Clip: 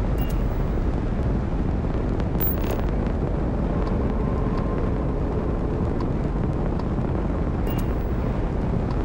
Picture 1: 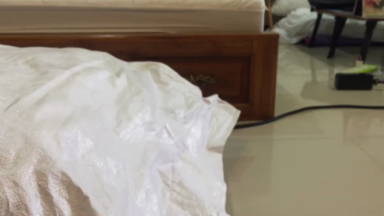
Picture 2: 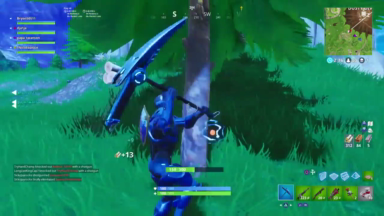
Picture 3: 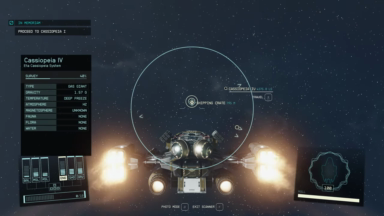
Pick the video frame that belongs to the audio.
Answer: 3